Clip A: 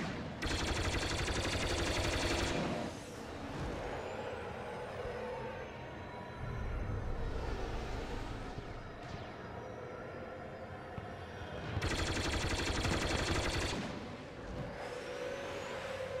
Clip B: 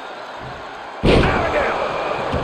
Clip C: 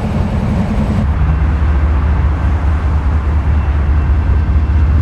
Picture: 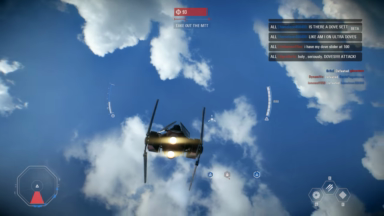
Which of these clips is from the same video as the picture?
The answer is A